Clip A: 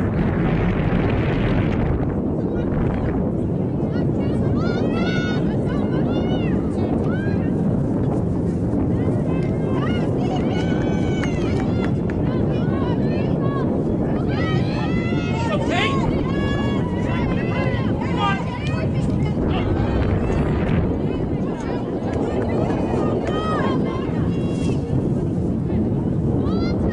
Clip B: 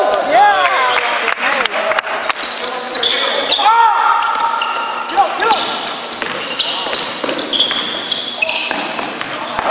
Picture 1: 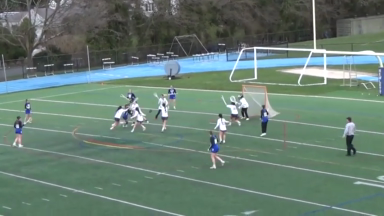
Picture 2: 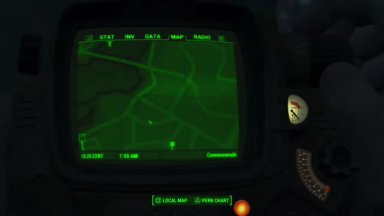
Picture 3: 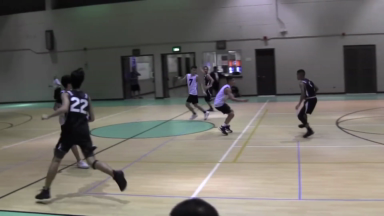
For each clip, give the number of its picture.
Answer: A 1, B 3